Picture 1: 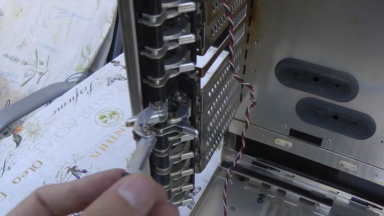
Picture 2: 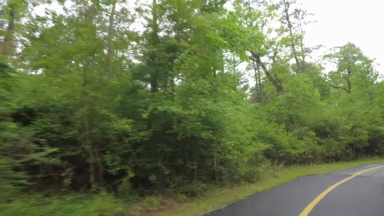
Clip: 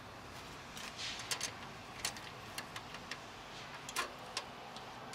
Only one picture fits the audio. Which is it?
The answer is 1